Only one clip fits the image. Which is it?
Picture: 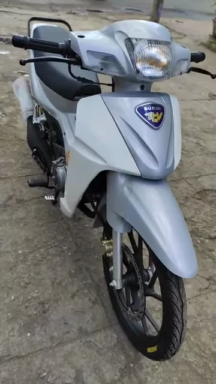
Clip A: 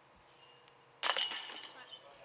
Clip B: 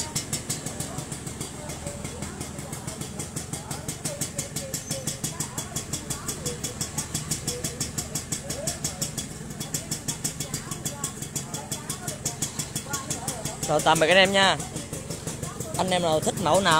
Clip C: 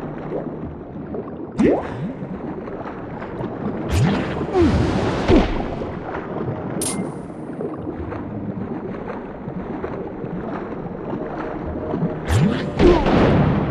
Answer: B